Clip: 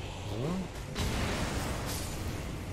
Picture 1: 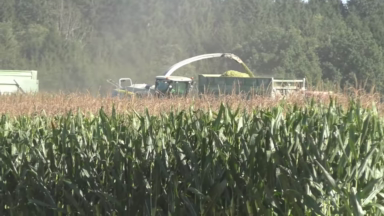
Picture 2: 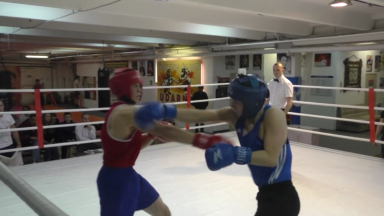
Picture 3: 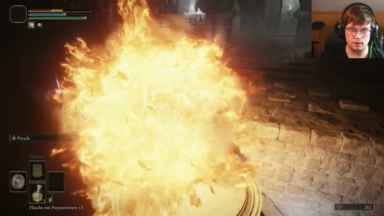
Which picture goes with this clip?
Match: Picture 3